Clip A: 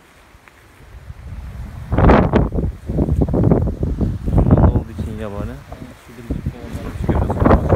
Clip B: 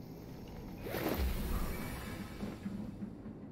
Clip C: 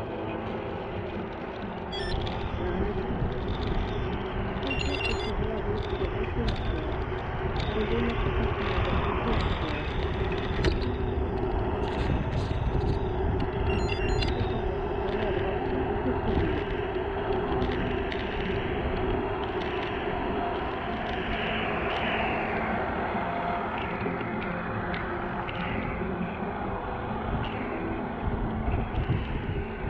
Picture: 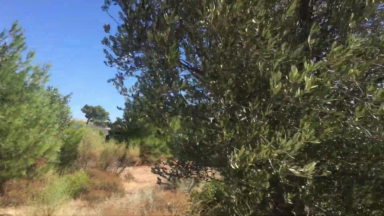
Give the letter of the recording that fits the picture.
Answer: A